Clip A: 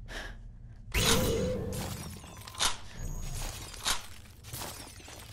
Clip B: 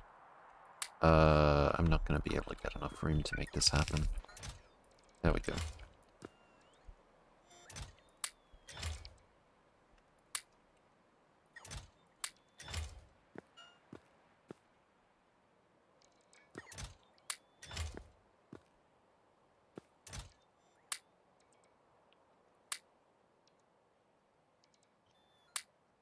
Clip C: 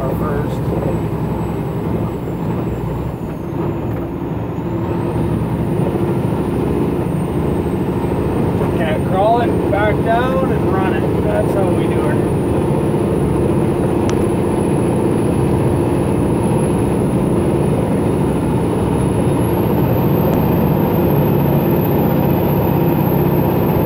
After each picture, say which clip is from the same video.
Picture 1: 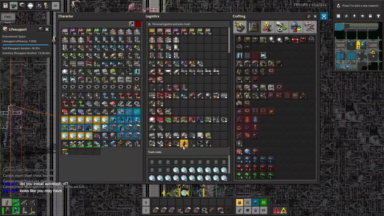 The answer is B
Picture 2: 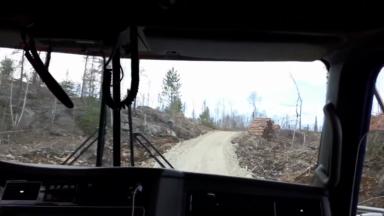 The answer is C